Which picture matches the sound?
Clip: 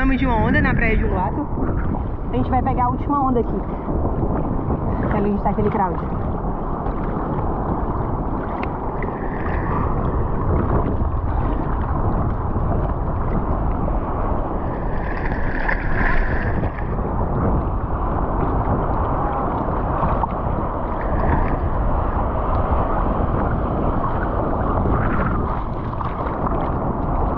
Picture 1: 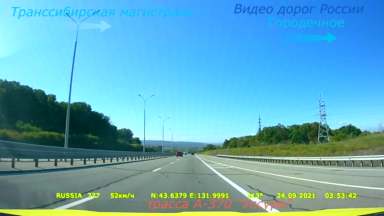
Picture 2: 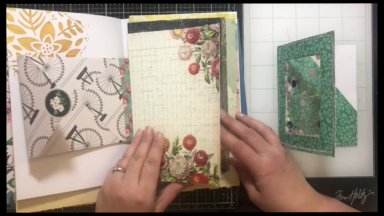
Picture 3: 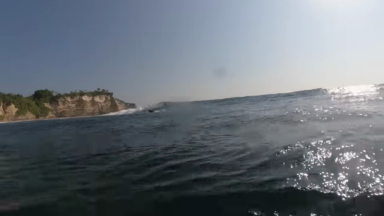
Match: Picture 3